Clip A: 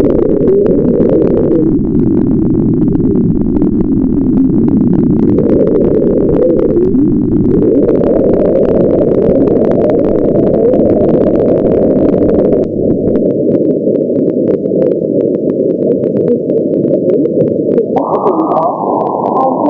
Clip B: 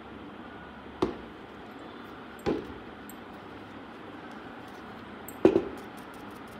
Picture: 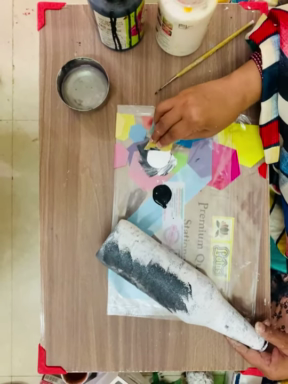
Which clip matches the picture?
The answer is B